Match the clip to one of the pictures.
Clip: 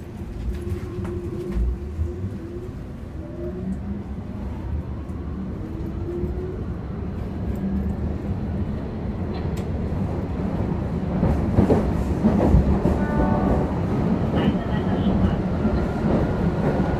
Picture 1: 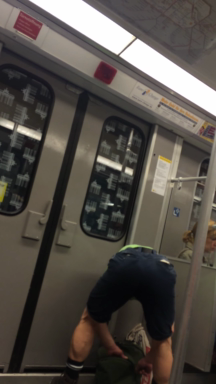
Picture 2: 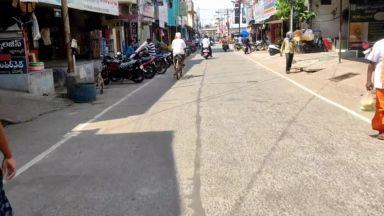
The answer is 1